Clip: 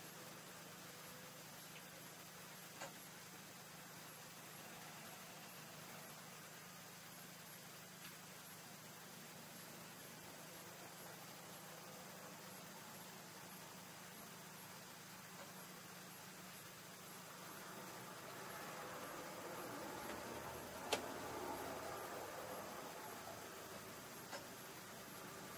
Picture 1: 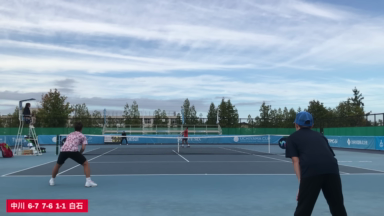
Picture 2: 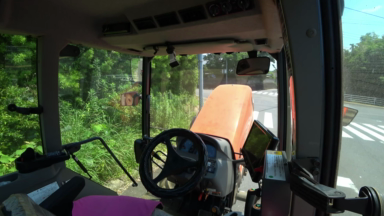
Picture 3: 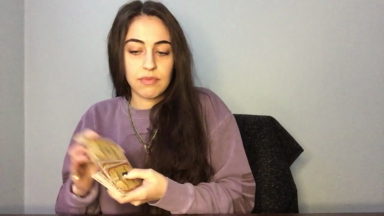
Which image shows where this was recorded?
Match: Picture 2